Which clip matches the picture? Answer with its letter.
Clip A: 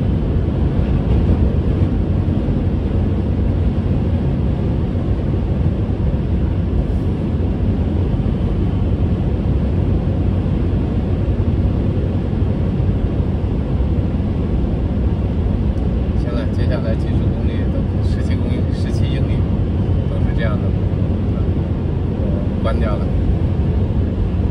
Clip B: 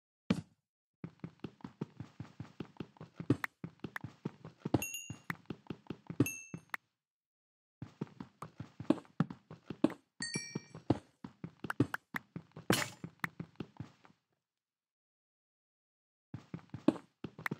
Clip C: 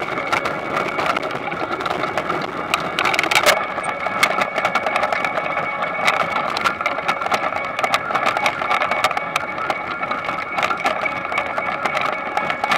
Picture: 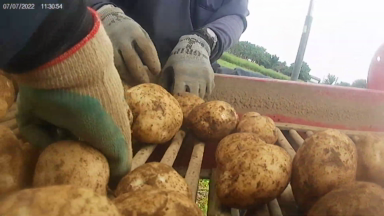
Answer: C